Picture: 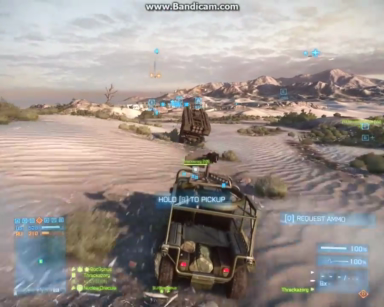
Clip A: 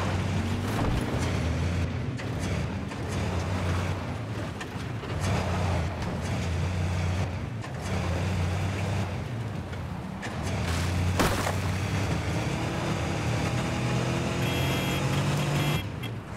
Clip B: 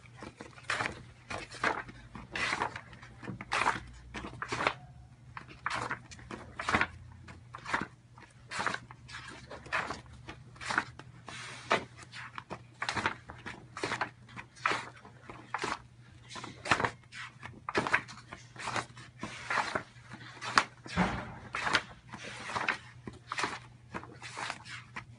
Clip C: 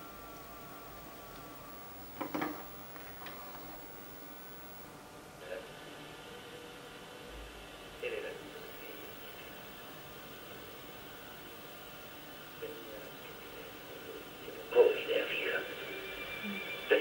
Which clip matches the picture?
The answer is A